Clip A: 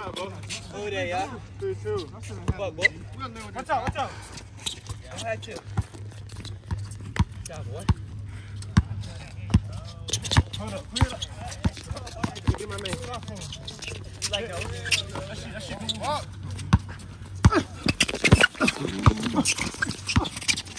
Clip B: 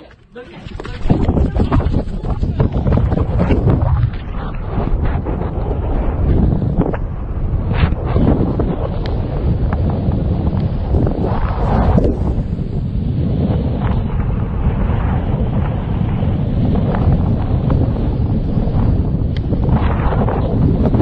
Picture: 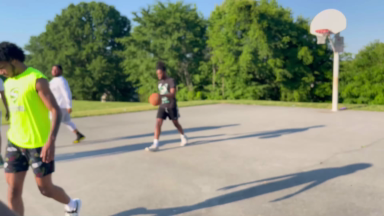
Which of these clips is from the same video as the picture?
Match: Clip A